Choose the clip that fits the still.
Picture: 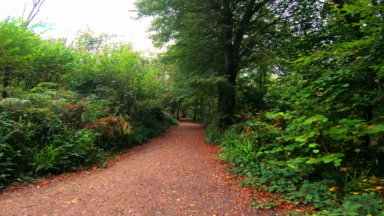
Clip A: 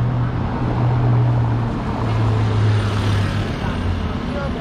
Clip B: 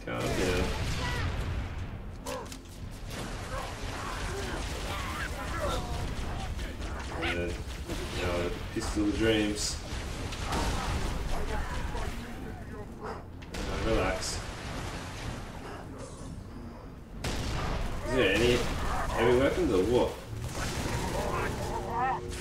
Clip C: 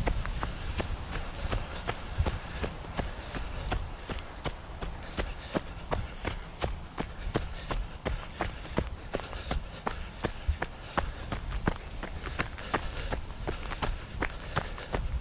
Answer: C